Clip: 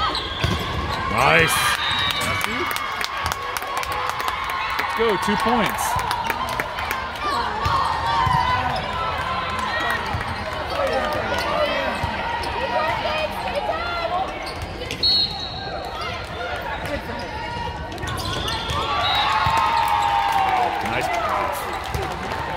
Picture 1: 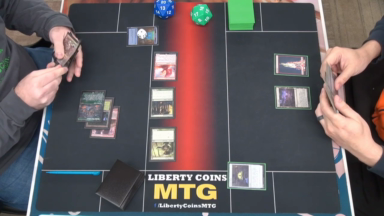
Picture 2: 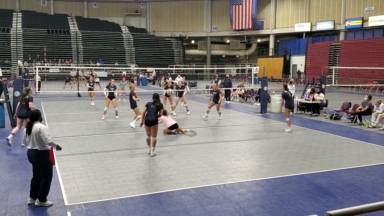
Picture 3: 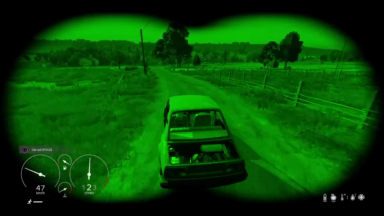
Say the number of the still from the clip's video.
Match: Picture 2